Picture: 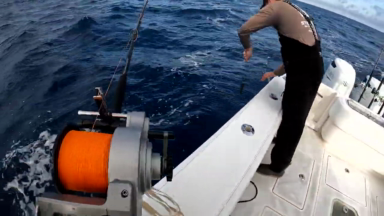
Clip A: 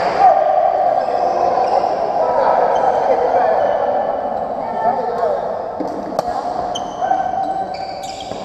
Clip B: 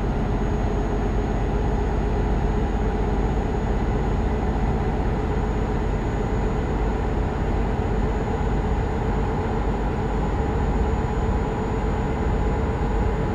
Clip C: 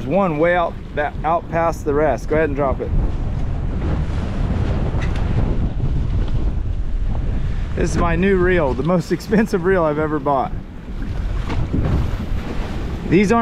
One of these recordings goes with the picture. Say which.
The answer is C